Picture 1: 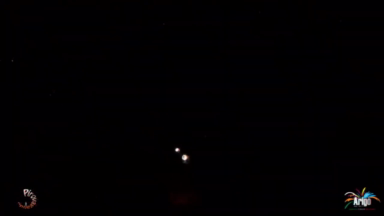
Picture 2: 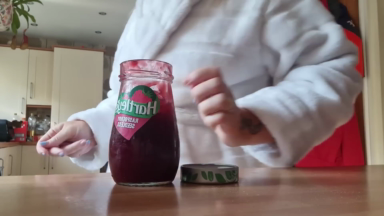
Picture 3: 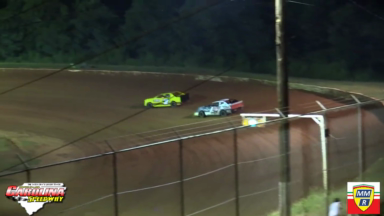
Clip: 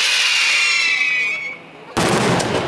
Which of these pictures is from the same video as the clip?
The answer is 1